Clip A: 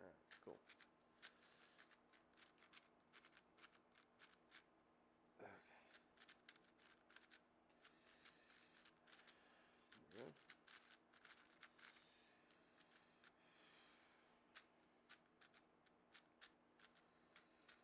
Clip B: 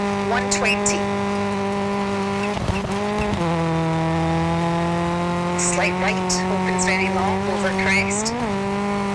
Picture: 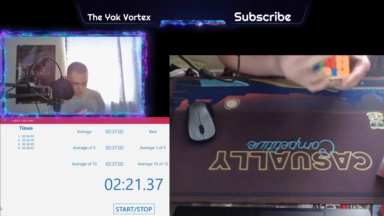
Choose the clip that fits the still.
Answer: A